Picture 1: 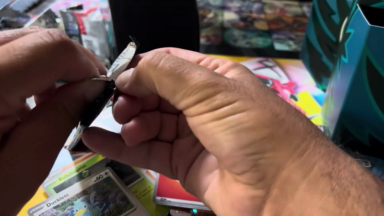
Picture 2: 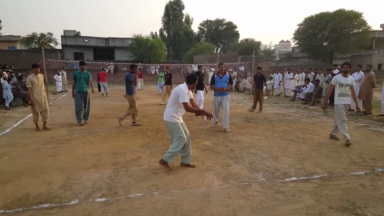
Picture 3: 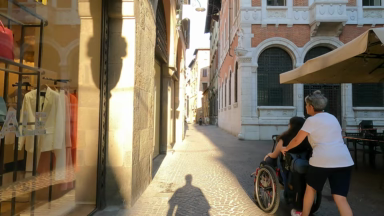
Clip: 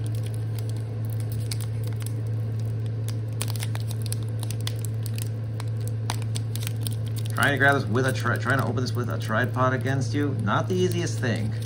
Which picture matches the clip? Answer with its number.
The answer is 1